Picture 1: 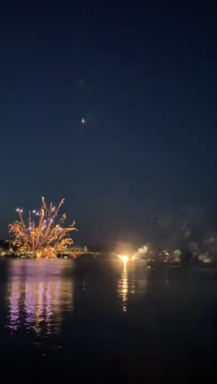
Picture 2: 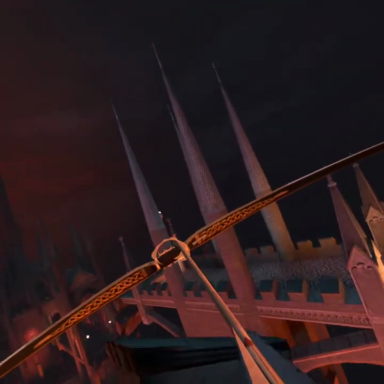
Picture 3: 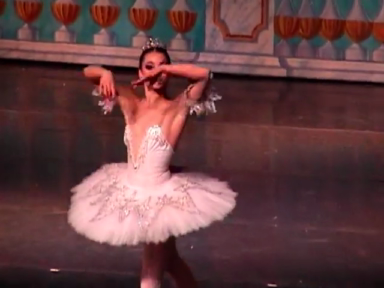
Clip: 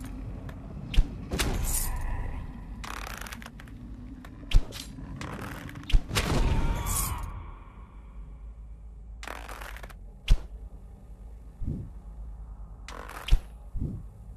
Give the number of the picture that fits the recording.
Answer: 2